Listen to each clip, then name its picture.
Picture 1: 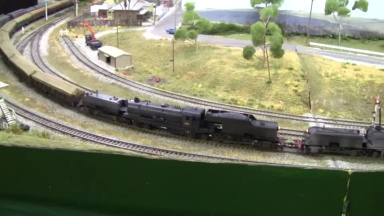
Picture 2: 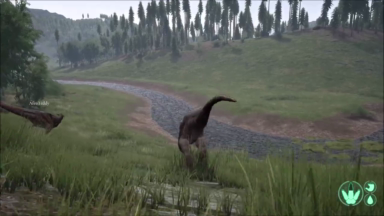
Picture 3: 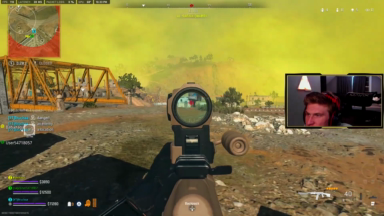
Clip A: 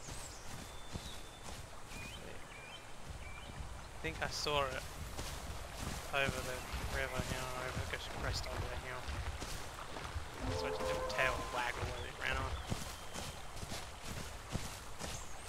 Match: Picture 2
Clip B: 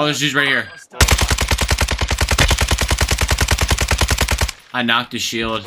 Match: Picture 3